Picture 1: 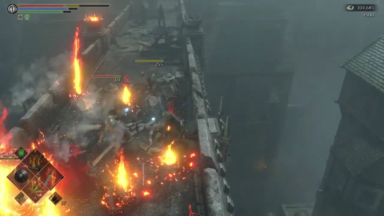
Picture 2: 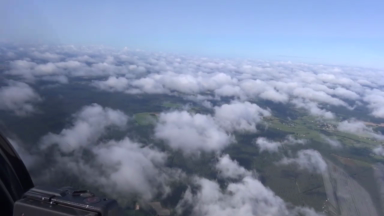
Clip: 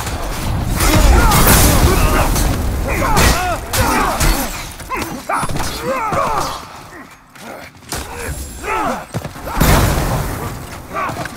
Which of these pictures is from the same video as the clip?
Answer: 1